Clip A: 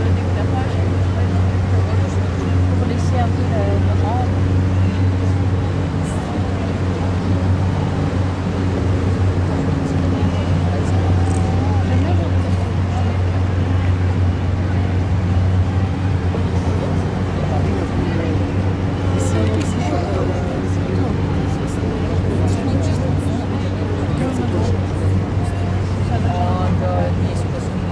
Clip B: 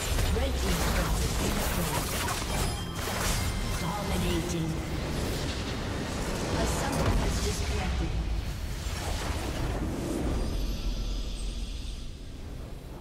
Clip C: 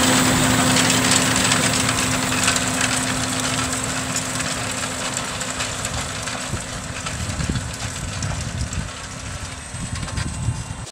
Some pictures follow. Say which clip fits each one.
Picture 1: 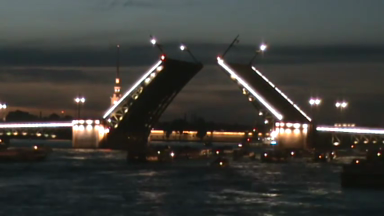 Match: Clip A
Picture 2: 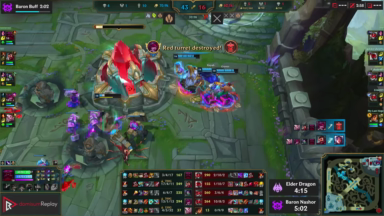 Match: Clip B